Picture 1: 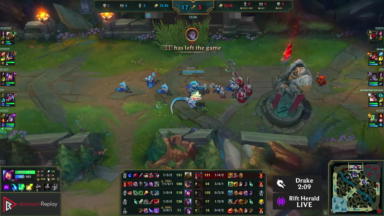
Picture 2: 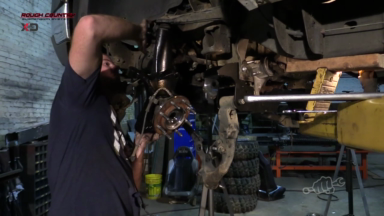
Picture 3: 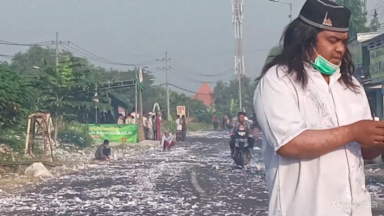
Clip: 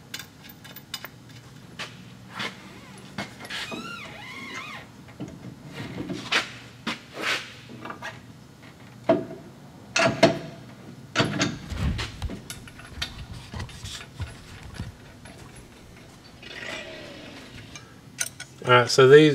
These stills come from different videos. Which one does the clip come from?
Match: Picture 2